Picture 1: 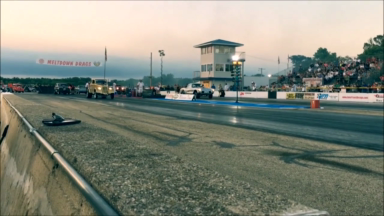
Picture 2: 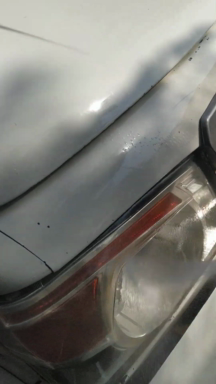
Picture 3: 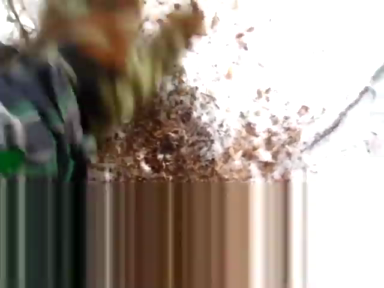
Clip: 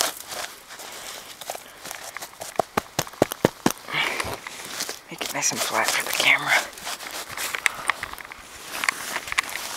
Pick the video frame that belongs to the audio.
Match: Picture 3